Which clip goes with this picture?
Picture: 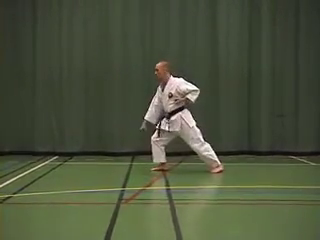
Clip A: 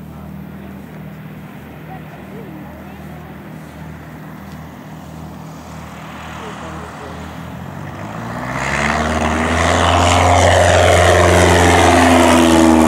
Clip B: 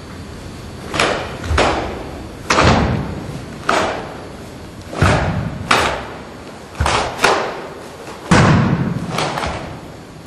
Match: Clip B